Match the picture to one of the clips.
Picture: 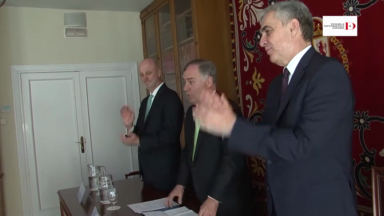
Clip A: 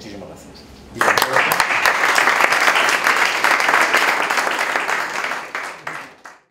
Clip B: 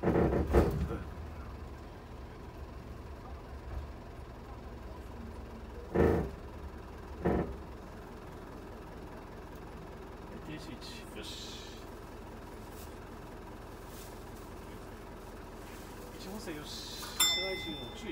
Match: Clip A